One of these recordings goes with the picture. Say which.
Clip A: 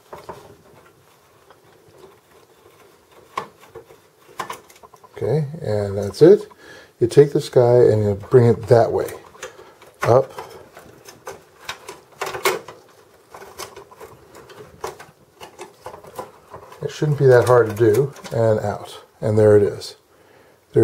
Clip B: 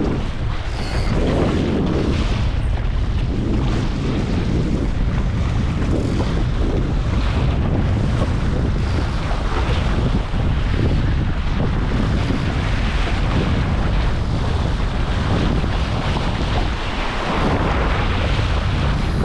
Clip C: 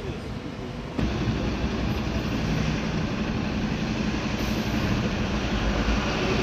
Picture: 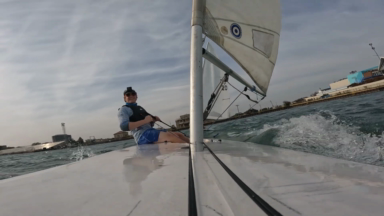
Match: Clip B